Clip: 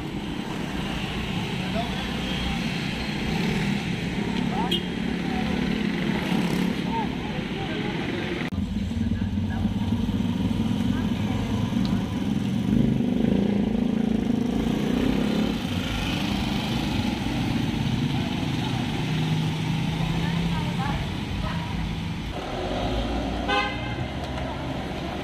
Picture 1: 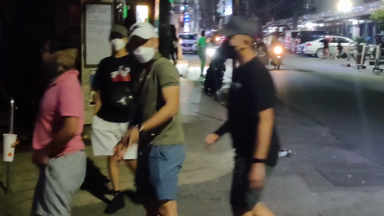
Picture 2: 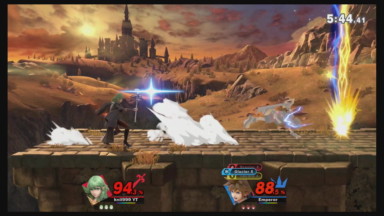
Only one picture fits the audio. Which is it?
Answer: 1